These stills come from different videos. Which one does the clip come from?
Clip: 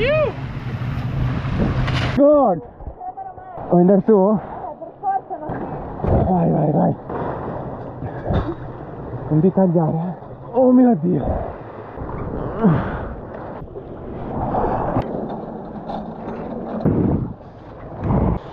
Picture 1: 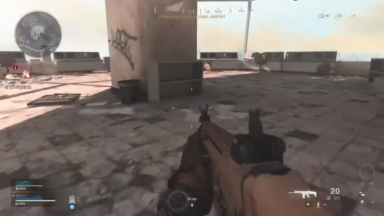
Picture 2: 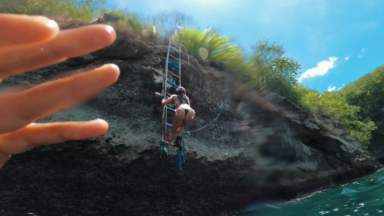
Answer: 2